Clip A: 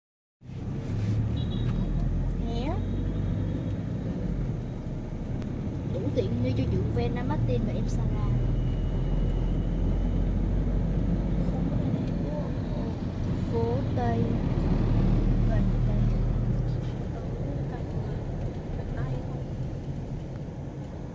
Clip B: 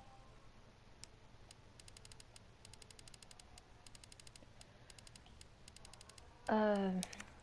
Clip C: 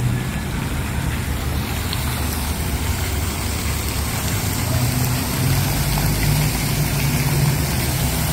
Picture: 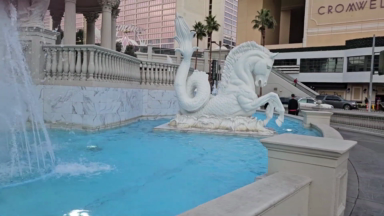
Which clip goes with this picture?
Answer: C